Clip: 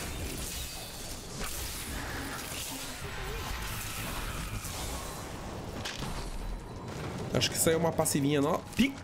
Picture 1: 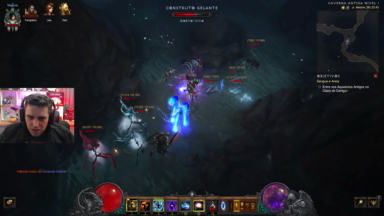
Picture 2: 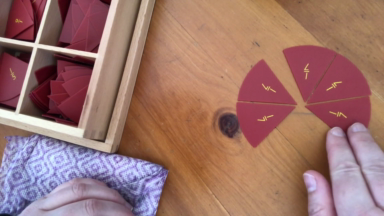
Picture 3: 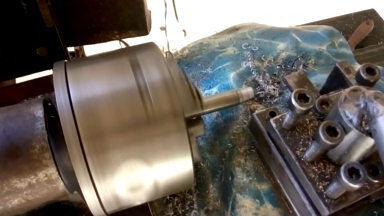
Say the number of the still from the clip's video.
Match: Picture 1